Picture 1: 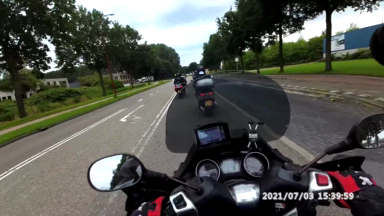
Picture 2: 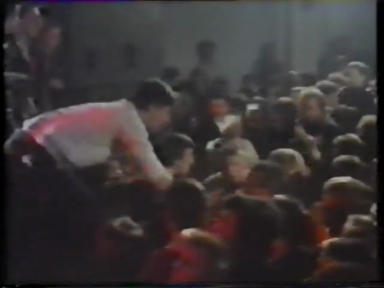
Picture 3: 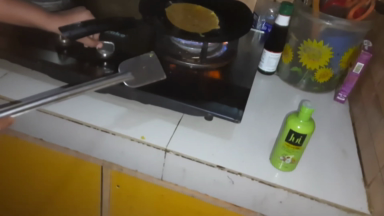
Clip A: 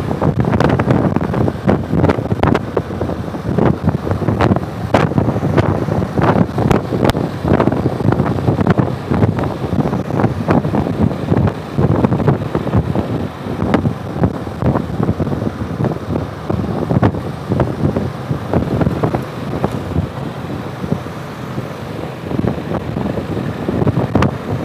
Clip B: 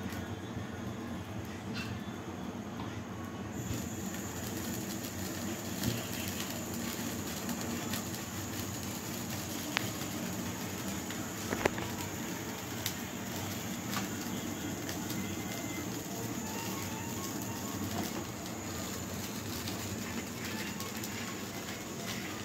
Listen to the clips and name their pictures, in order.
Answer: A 1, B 3